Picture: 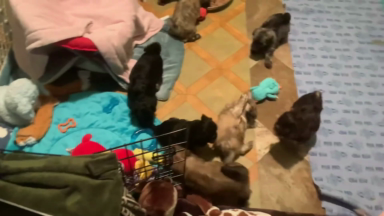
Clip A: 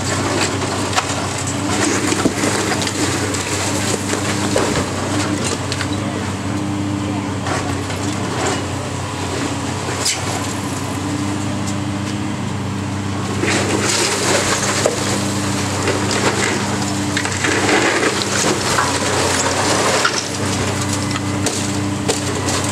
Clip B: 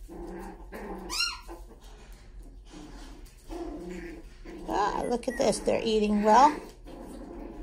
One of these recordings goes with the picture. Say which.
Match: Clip B